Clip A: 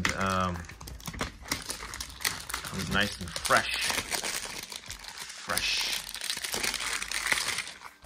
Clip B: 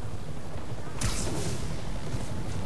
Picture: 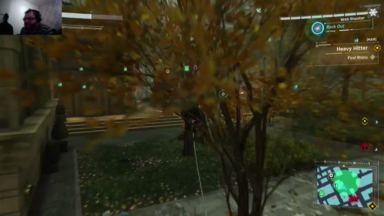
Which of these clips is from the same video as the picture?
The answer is B